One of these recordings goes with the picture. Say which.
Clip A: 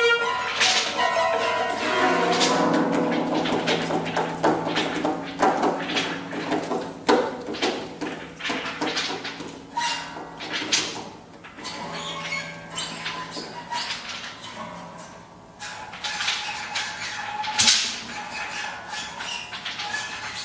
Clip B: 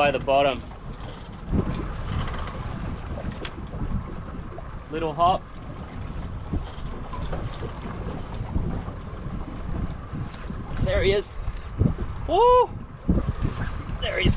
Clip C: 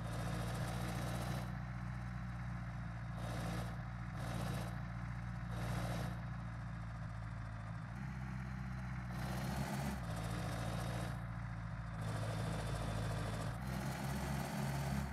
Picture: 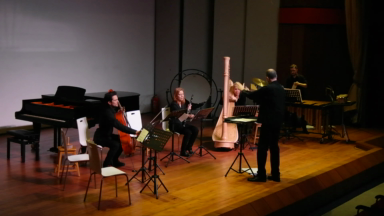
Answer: A